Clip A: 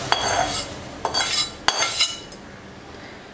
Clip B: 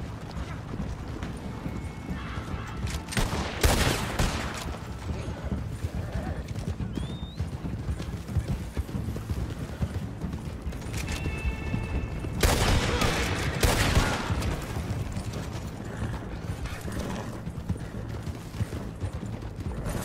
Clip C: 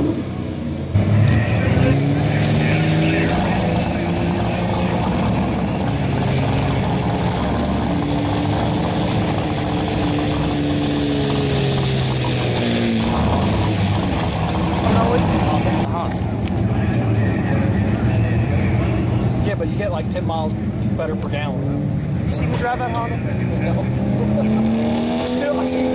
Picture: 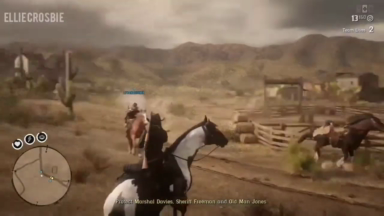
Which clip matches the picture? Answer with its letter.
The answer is B